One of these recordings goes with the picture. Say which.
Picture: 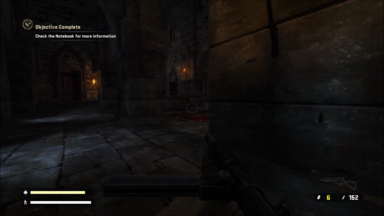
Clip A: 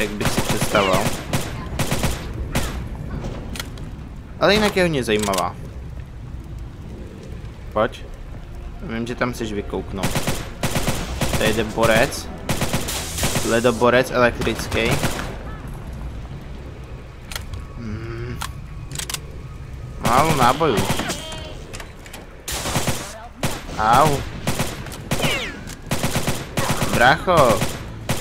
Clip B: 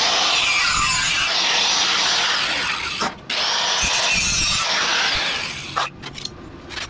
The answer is A